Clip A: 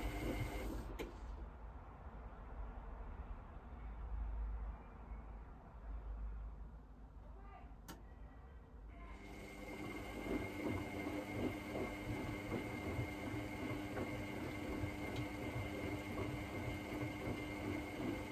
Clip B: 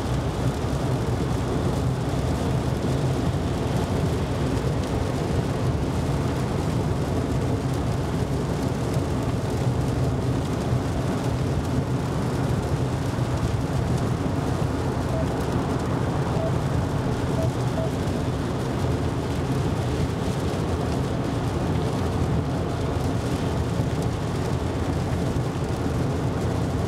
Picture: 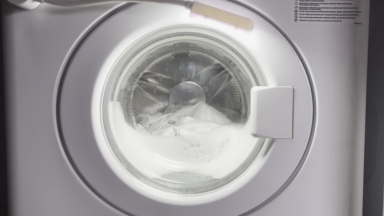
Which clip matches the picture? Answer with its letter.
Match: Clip A